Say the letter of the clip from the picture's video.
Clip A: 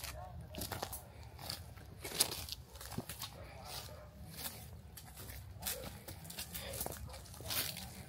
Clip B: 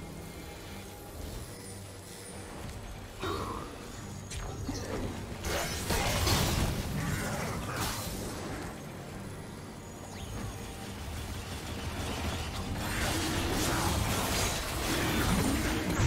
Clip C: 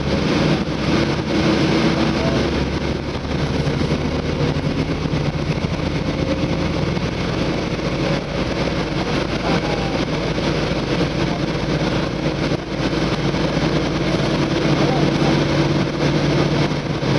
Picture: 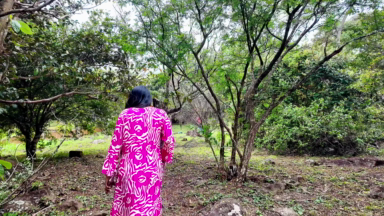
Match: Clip A